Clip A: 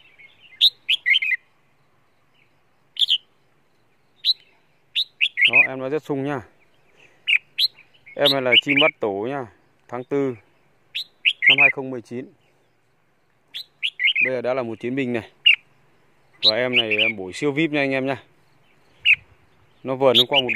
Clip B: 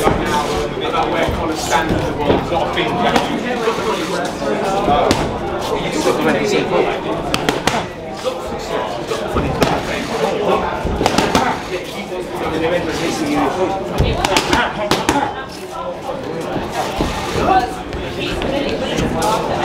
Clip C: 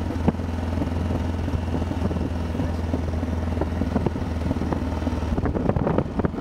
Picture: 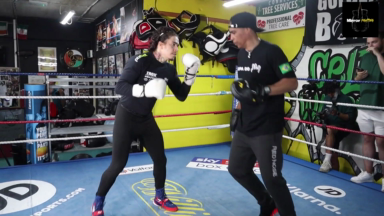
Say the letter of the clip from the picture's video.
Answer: B